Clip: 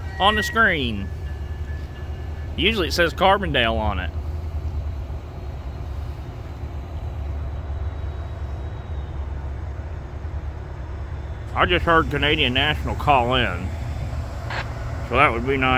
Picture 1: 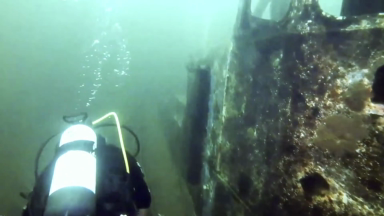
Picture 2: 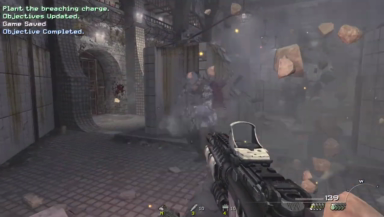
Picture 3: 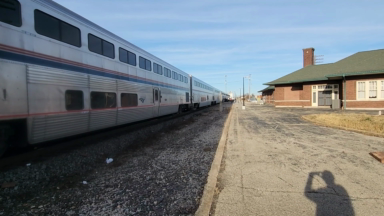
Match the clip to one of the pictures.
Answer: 3